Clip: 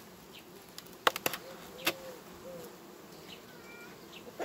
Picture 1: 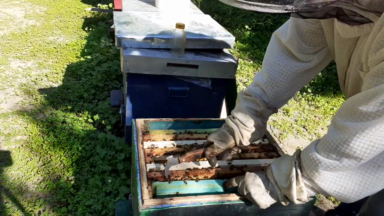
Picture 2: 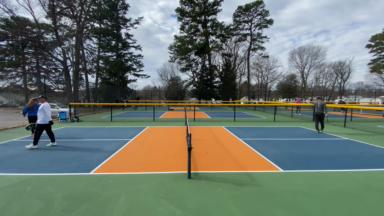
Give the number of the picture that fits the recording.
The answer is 1